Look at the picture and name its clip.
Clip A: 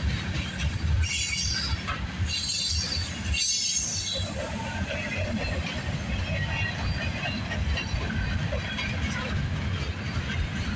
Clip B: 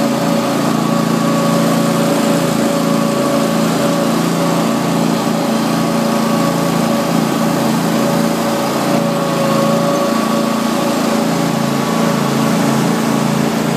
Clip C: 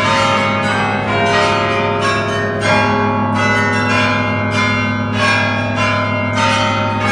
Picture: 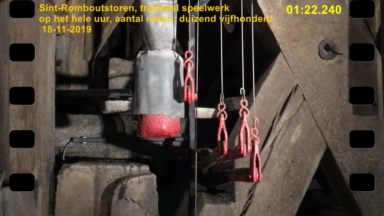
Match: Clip C